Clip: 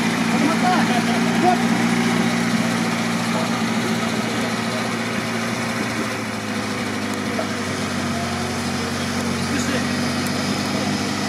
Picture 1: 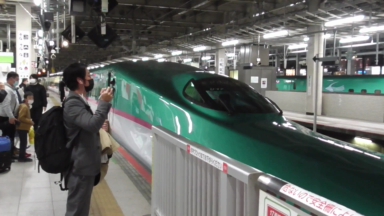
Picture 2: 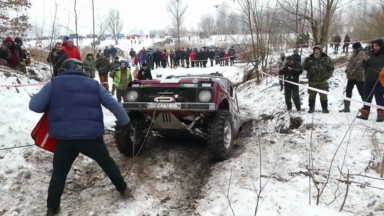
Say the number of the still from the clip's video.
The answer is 2